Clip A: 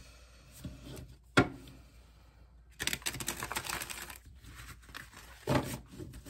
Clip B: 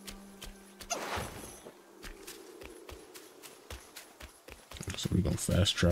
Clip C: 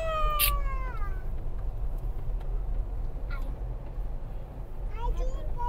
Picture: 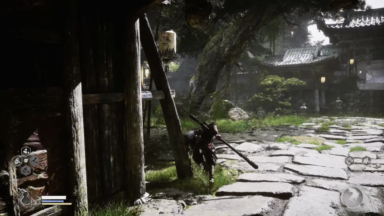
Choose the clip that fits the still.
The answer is B